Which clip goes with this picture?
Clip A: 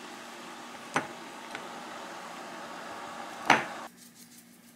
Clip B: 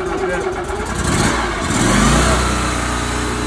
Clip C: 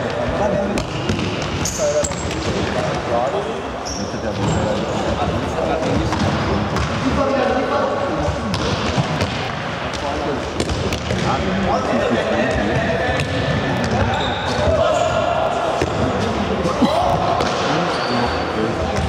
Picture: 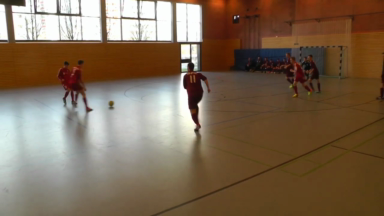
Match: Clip C